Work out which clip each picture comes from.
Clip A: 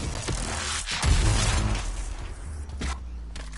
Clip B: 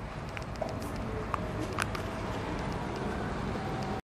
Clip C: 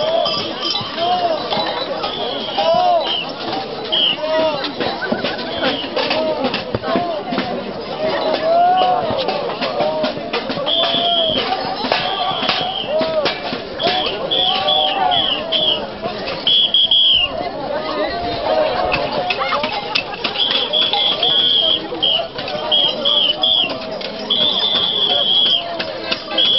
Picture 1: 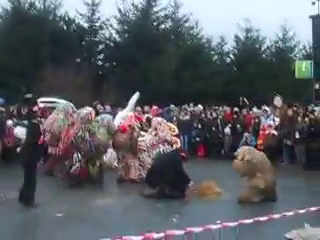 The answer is C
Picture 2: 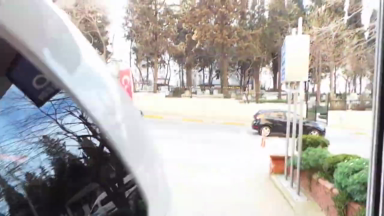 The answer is B